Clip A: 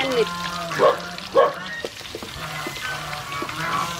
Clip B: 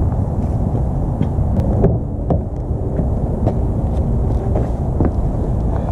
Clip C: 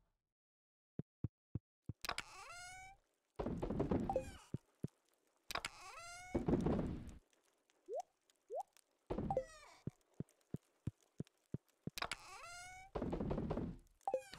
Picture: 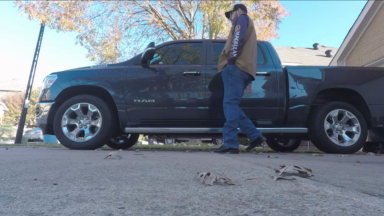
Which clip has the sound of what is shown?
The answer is B